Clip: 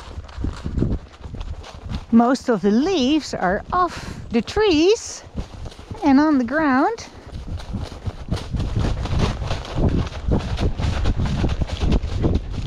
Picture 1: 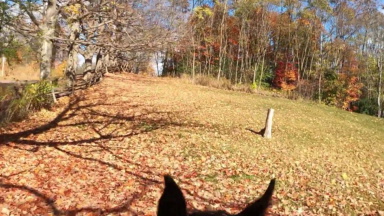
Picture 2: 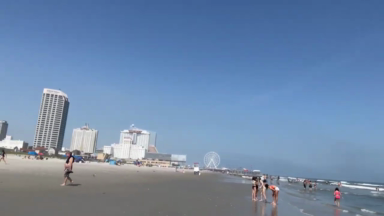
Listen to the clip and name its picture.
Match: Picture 1